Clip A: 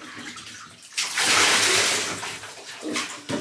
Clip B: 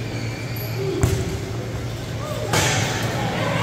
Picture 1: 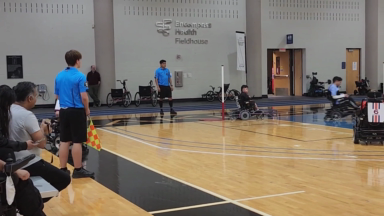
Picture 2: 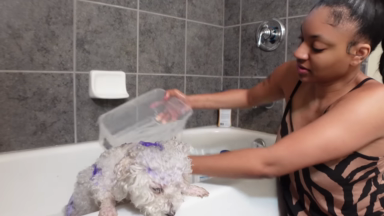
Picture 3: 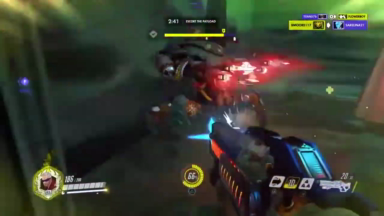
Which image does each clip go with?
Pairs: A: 2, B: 1